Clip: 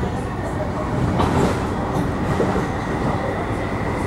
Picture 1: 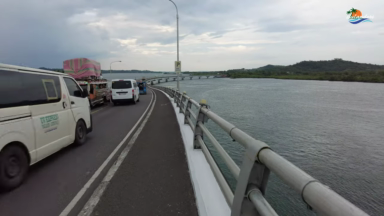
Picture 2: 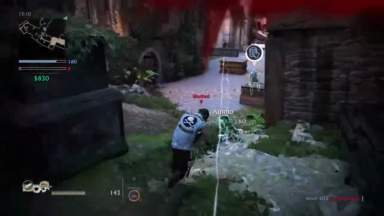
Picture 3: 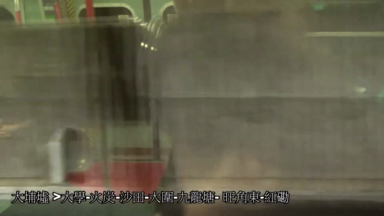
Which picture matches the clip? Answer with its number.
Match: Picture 3